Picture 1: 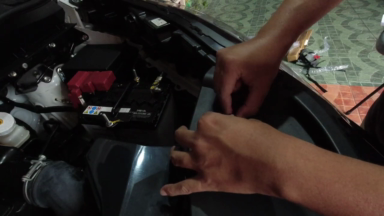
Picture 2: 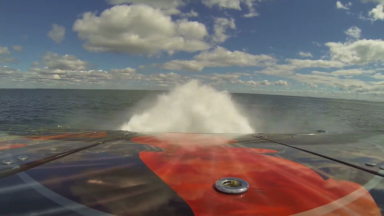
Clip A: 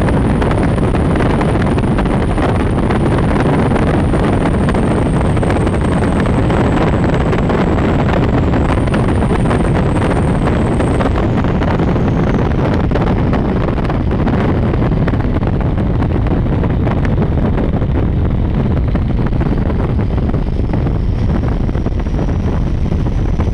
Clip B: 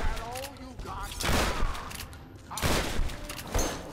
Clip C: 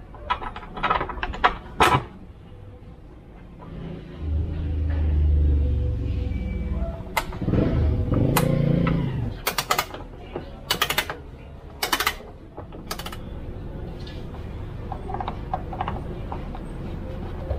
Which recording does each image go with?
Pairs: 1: C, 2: A